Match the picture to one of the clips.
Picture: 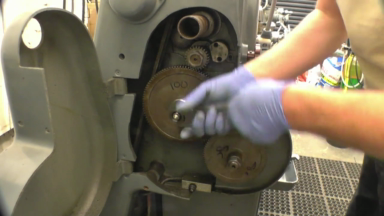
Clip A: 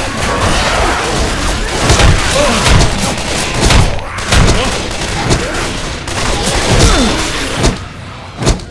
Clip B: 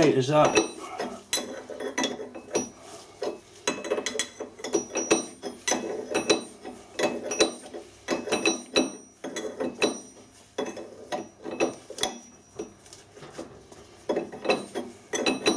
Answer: B